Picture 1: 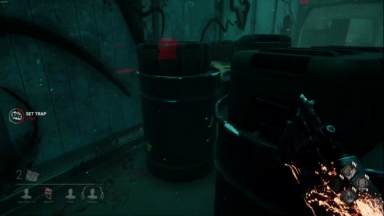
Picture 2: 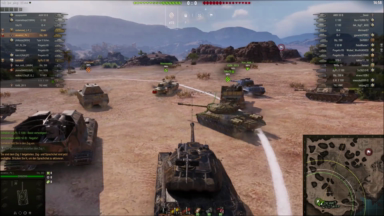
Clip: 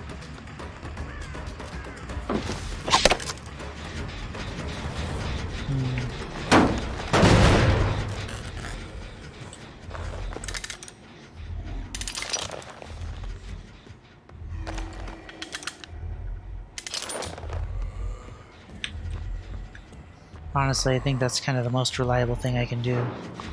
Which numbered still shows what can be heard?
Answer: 1